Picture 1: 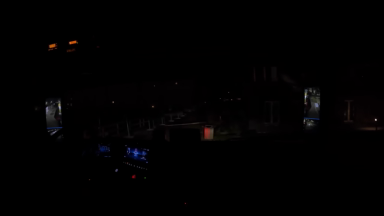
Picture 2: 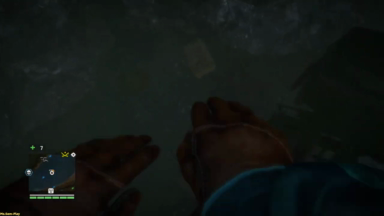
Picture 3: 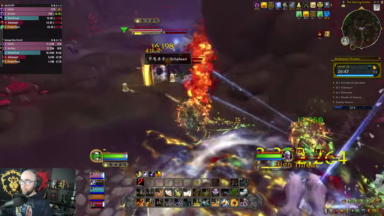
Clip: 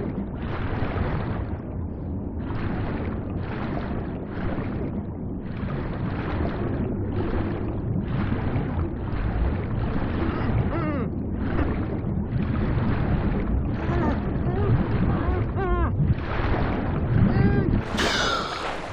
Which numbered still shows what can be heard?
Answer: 2